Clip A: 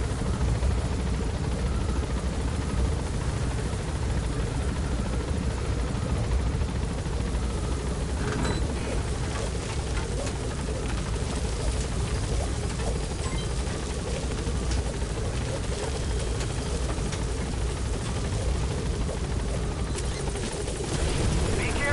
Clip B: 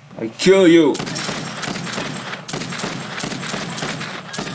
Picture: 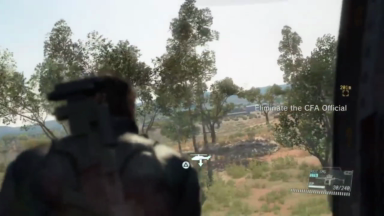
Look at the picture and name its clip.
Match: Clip A